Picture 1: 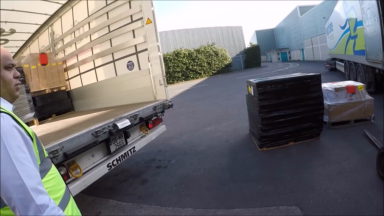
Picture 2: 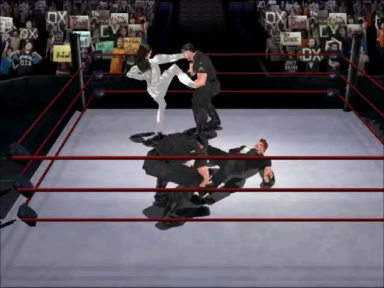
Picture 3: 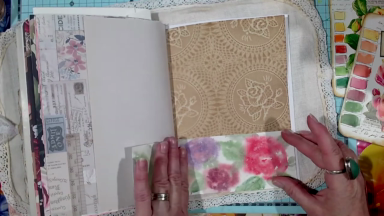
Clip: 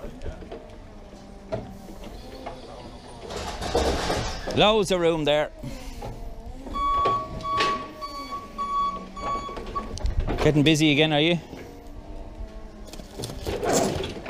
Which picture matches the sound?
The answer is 1